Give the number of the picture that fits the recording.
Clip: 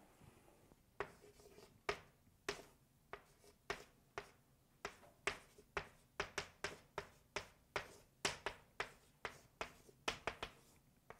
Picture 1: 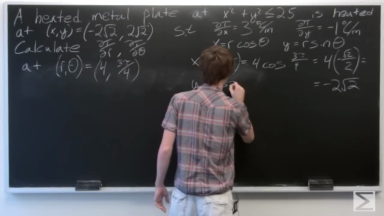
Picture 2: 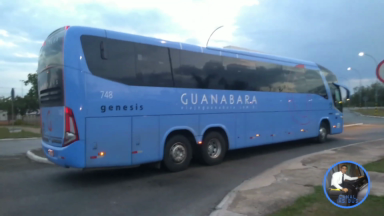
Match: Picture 1